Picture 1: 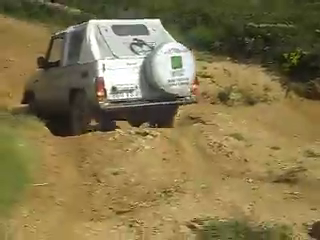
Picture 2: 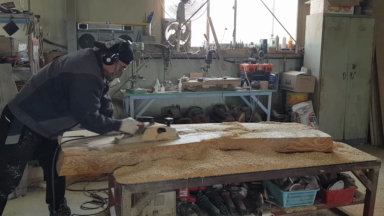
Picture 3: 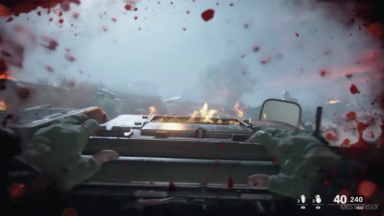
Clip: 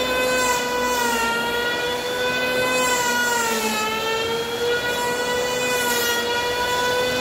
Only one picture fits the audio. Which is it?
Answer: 2